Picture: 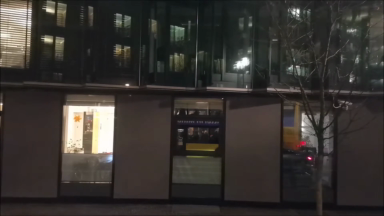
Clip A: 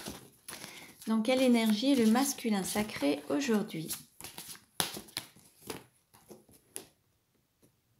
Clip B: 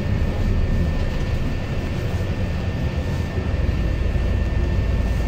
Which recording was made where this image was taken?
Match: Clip B